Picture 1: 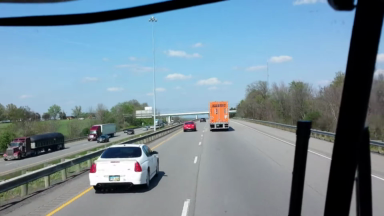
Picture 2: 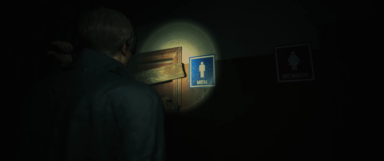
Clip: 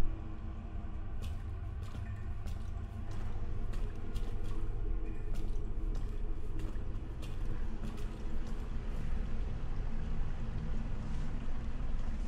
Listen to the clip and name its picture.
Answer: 2